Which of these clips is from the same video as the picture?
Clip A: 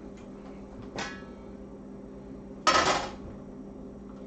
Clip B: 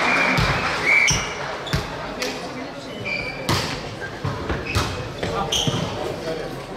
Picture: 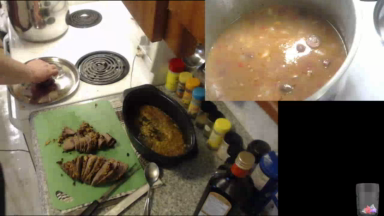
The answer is A